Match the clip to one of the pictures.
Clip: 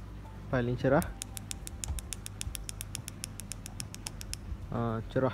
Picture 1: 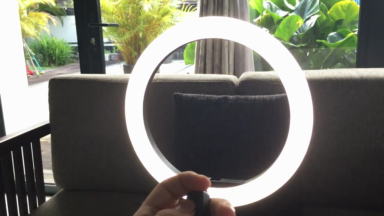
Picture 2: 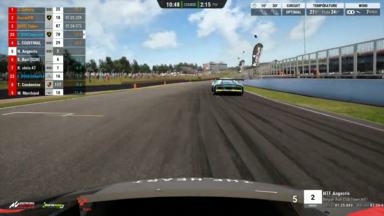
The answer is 1